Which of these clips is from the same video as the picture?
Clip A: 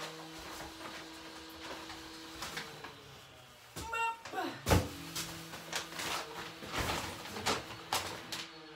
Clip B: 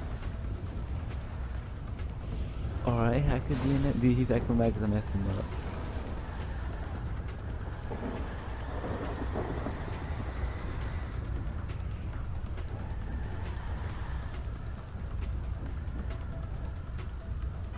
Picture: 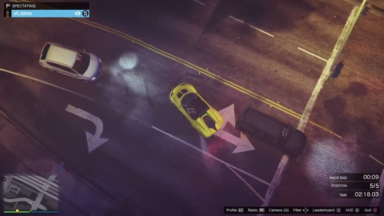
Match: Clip B